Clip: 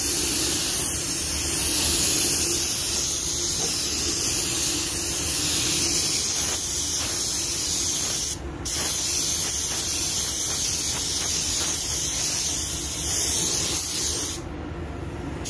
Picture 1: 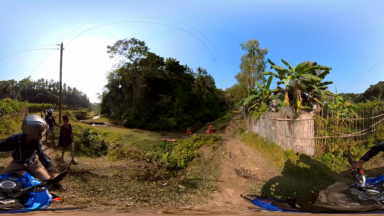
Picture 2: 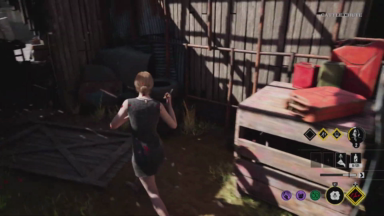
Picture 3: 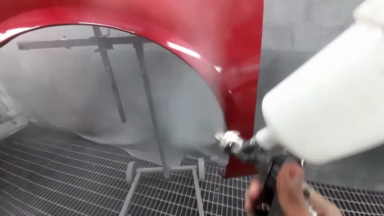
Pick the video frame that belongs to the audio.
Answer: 3